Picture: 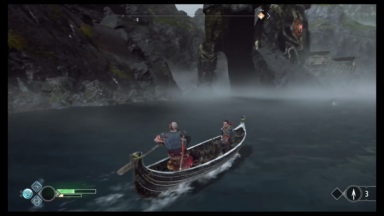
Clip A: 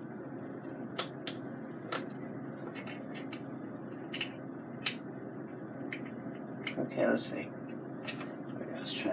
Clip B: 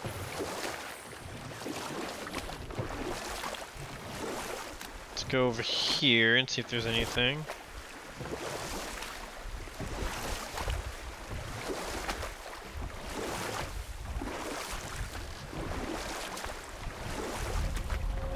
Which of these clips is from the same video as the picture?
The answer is B